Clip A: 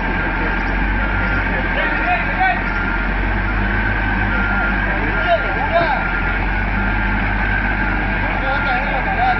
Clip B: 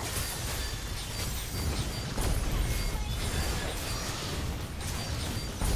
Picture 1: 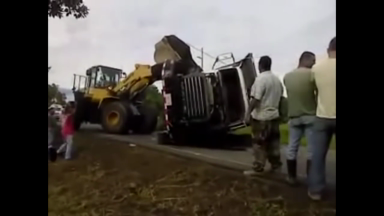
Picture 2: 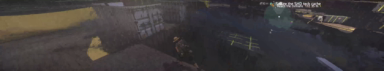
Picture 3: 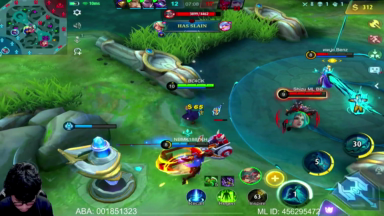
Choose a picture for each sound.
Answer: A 1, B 3